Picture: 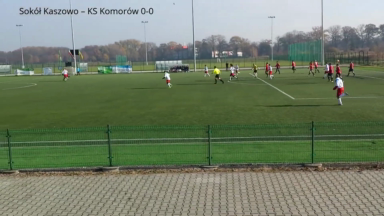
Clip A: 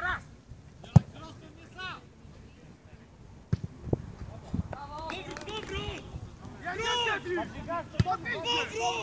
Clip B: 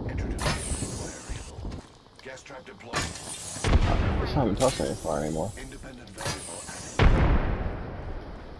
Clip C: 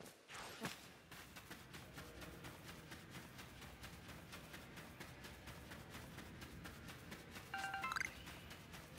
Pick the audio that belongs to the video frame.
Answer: A